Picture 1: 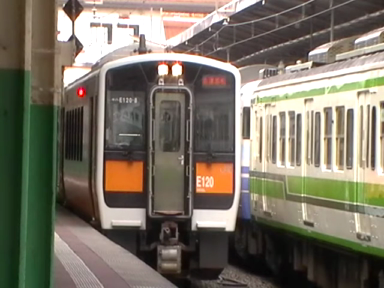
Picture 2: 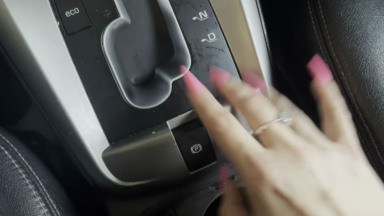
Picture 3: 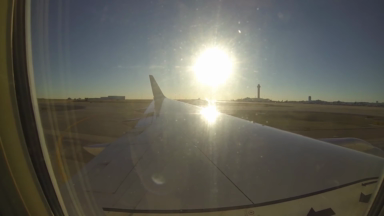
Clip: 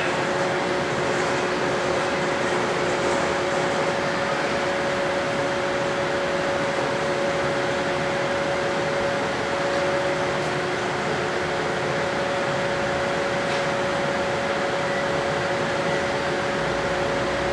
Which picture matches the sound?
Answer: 1